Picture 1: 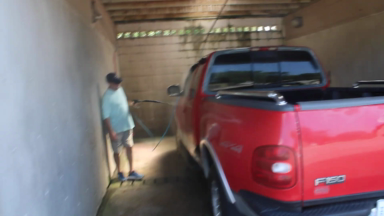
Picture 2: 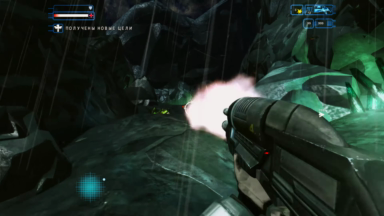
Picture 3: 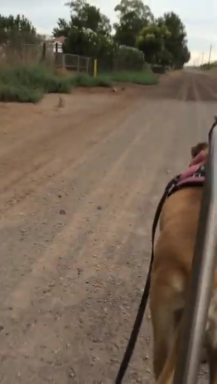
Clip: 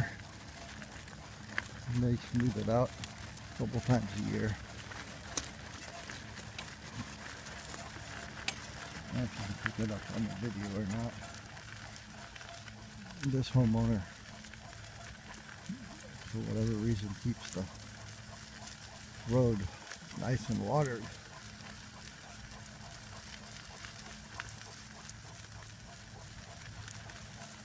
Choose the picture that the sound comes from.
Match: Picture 3